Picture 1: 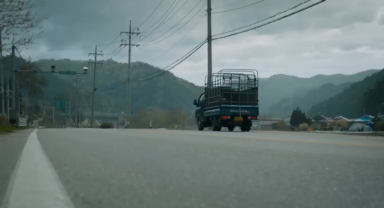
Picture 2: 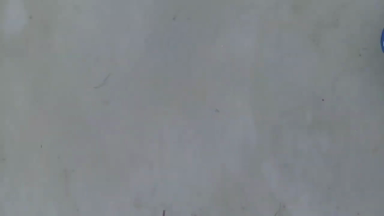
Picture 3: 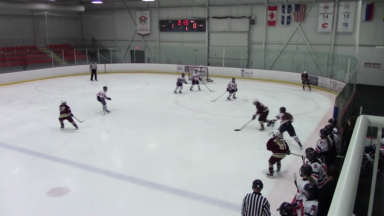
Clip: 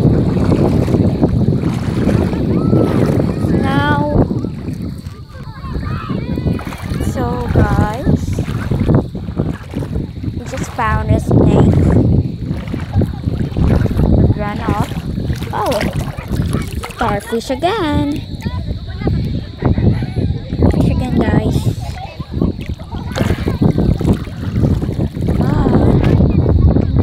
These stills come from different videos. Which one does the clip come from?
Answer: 2